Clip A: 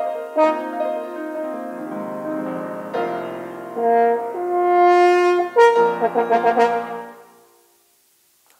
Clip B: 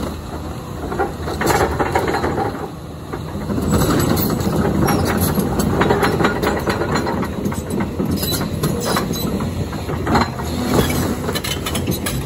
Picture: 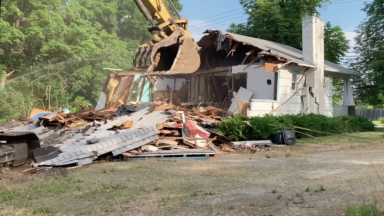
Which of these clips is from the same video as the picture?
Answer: B